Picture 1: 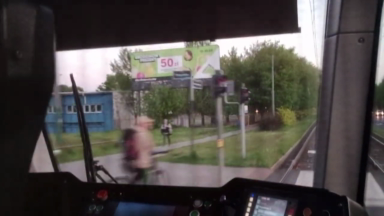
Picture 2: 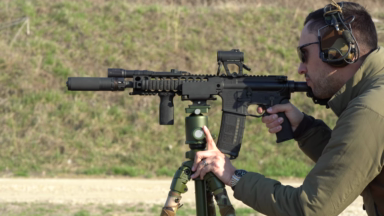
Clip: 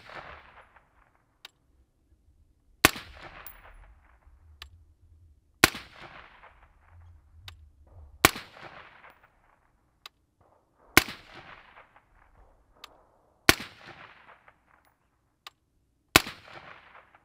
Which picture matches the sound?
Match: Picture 2